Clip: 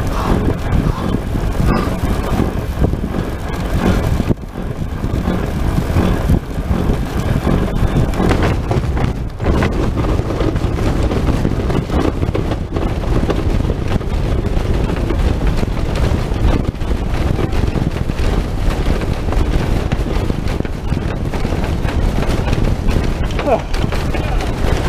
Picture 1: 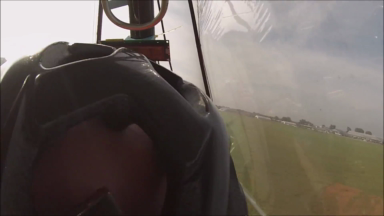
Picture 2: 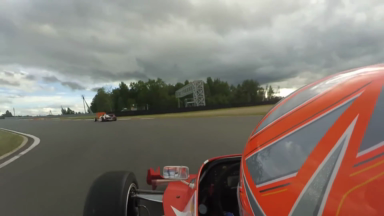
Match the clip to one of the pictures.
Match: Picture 1